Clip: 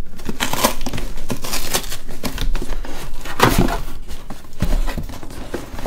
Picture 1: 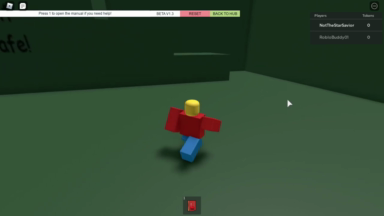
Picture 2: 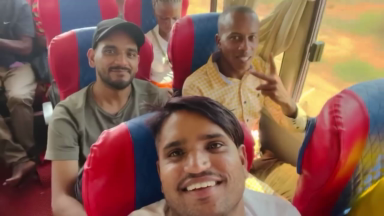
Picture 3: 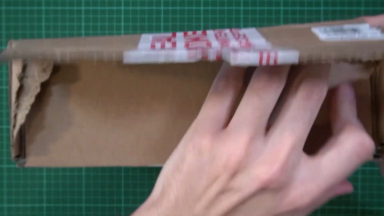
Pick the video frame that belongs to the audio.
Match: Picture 3